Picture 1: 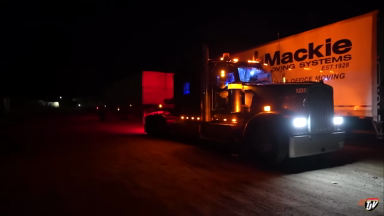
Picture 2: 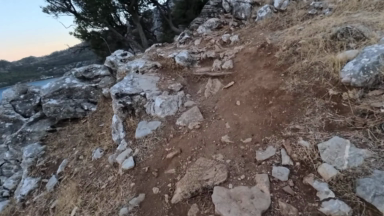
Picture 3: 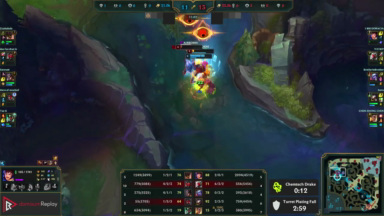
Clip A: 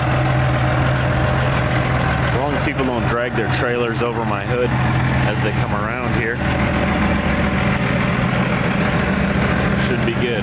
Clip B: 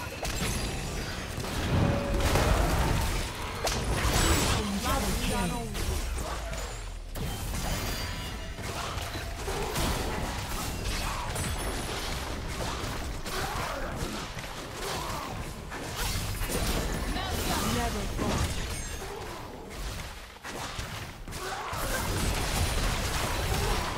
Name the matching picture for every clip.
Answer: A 1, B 3